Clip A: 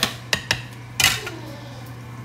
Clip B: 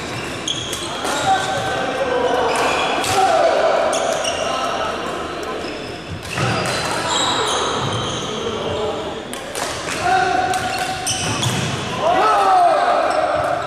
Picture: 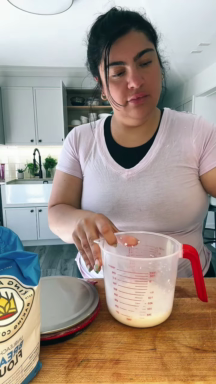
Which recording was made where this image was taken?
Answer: A